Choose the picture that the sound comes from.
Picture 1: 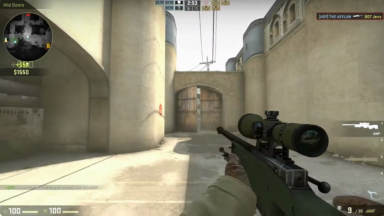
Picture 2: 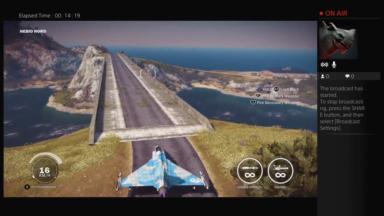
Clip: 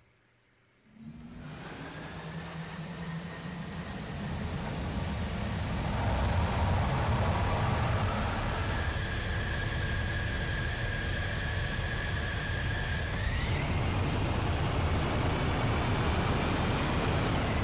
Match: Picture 2